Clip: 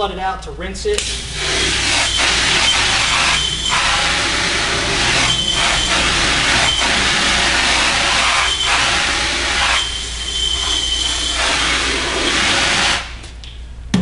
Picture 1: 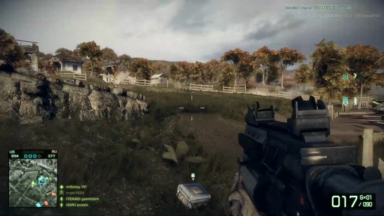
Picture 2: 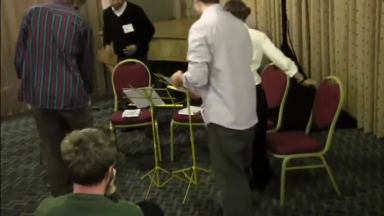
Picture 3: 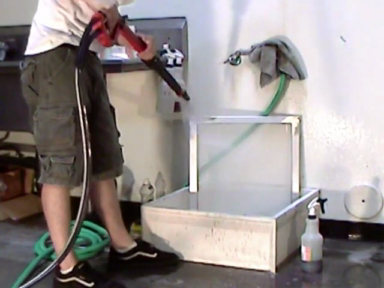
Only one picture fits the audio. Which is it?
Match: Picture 3